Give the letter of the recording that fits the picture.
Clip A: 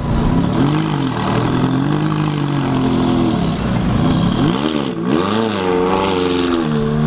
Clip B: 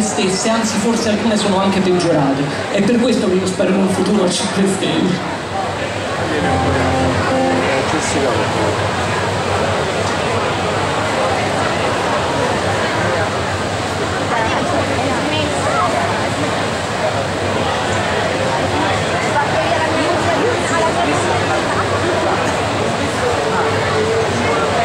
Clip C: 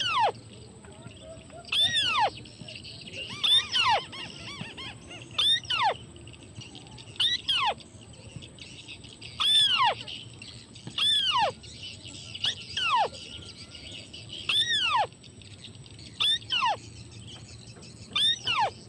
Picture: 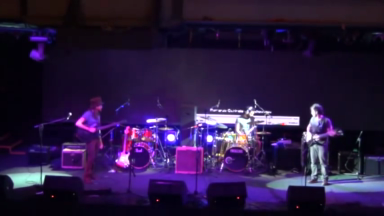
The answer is B